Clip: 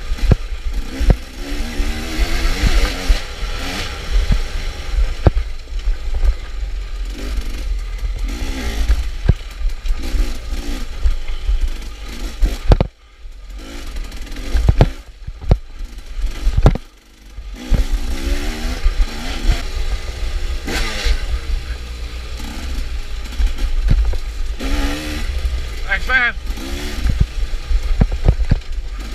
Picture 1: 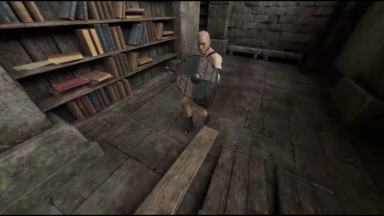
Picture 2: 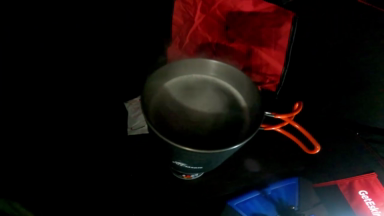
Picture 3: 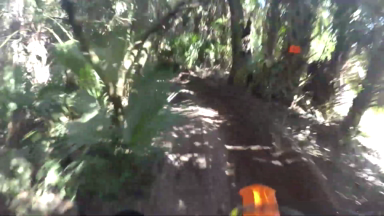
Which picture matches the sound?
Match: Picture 3